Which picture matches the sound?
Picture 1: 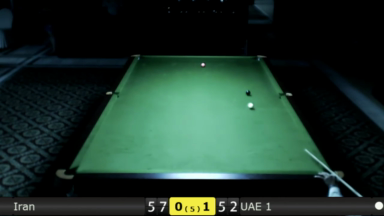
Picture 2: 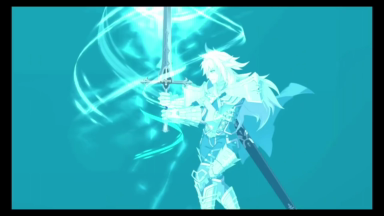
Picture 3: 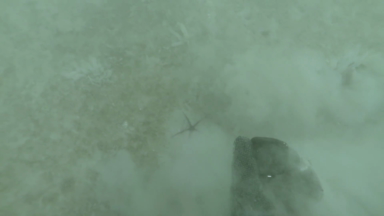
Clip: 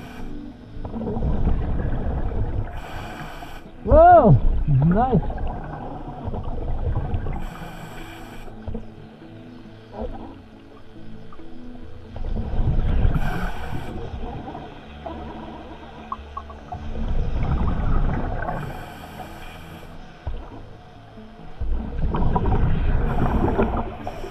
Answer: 3